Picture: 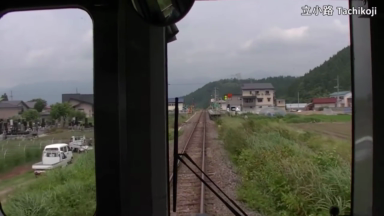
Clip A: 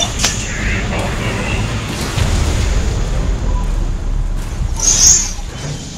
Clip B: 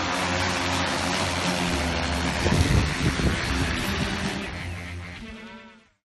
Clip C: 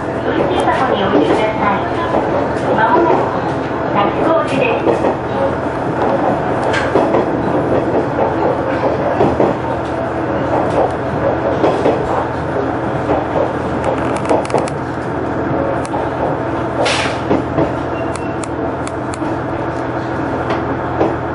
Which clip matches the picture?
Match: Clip C